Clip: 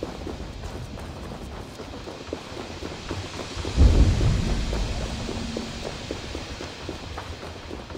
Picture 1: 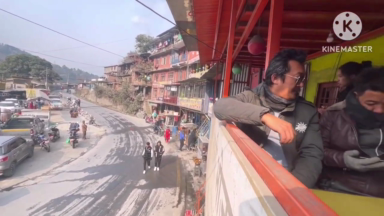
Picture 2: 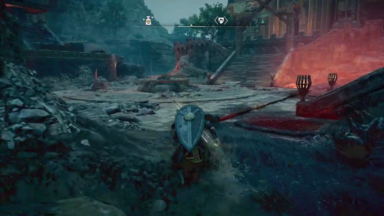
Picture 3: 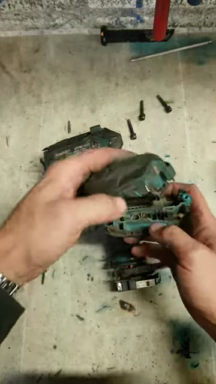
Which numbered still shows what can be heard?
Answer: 2